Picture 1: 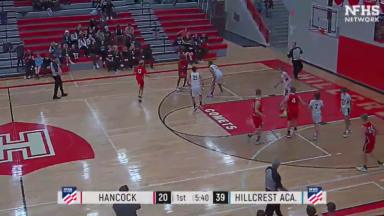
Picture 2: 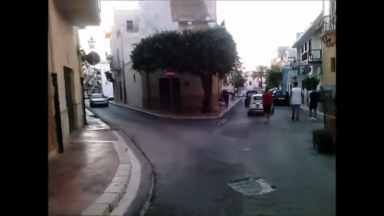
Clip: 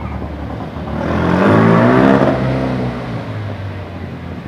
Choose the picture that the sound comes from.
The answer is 2